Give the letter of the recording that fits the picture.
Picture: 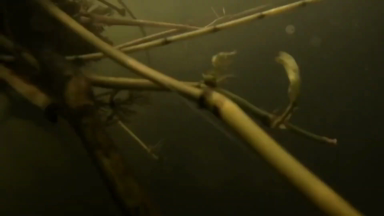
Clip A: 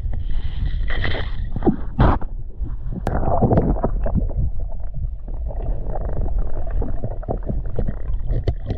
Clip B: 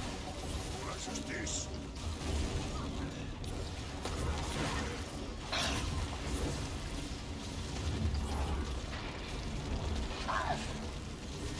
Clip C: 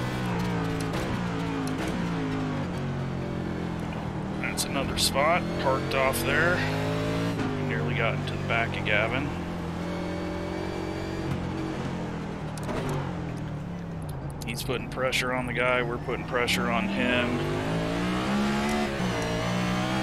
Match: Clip A